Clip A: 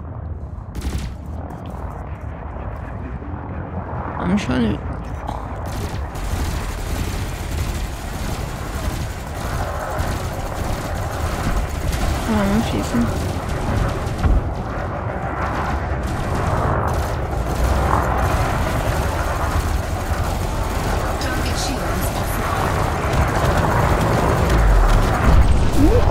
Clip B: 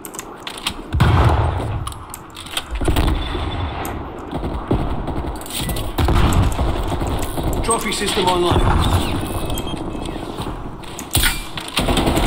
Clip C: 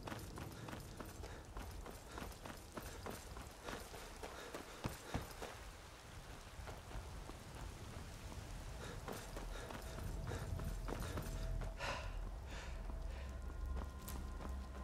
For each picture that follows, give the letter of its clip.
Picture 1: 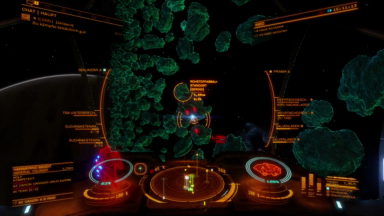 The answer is A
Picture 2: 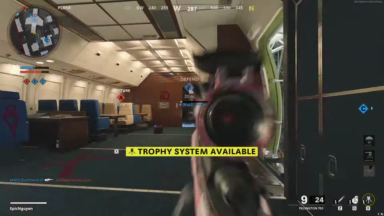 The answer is B